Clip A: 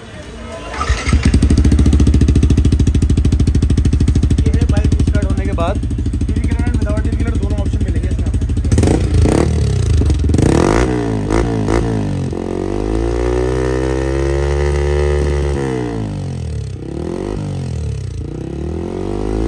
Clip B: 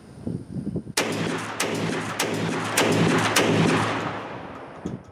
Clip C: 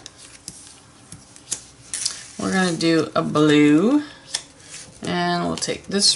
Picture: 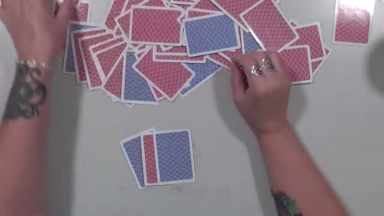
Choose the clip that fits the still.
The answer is C